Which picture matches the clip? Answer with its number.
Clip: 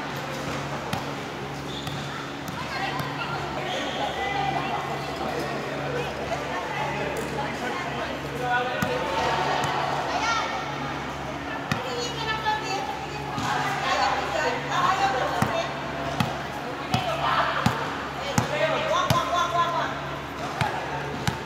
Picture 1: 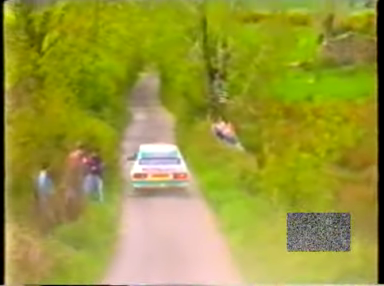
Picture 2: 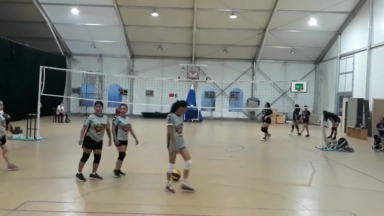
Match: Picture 2